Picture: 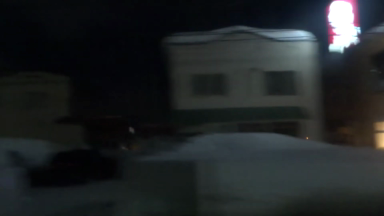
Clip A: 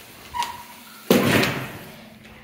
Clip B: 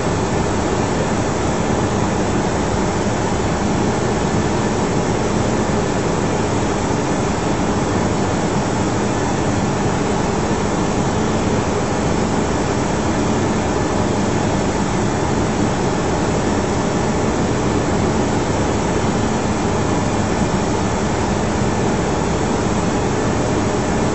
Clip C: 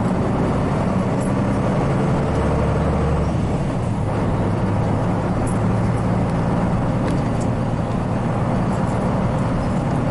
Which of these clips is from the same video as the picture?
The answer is C